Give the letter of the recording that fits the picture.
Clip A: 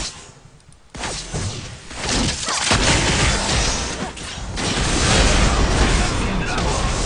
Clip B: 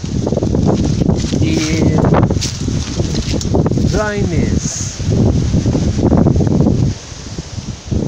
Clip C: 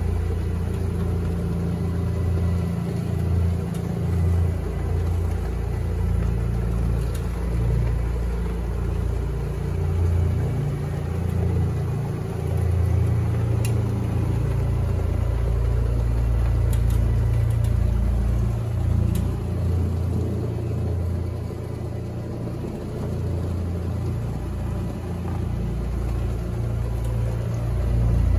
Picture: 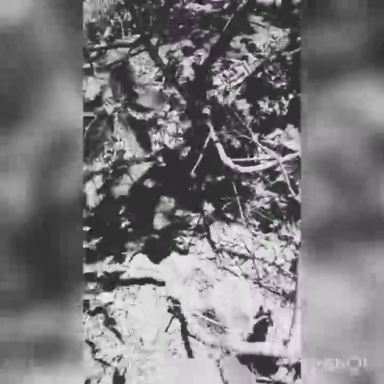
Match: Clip B